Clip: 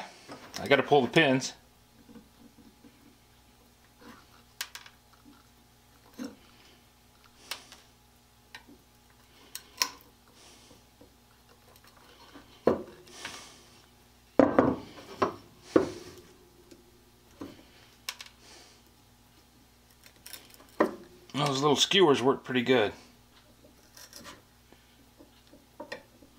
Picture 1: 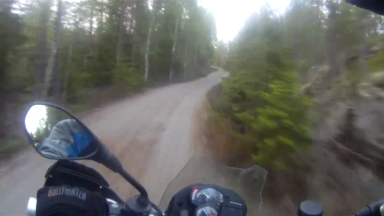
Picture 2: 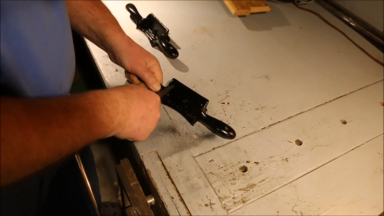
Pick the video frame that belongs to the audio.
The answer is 2